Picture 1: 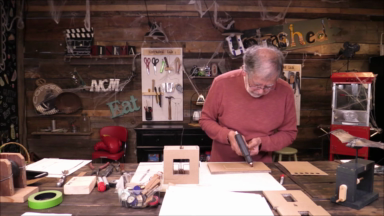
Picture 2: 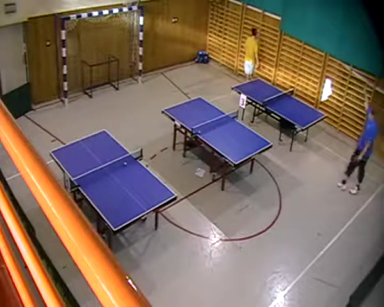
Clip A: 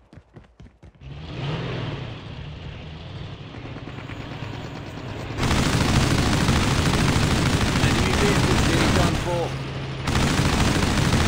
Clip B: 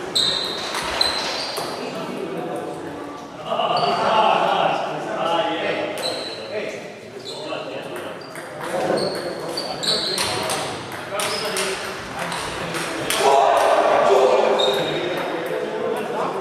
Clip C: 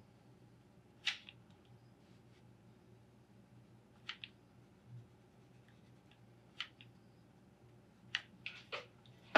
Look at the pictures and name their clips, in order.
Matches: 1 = C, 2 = B